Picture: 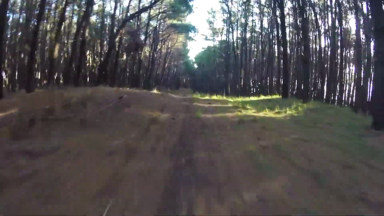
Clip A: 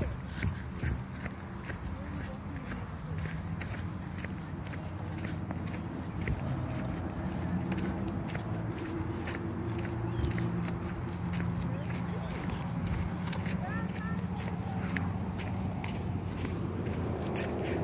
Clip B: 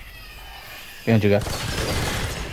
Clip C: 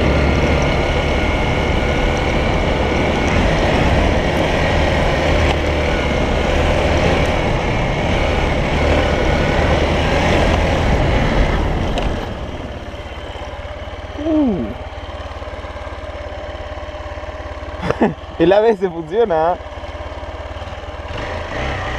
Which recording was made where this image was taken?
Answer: C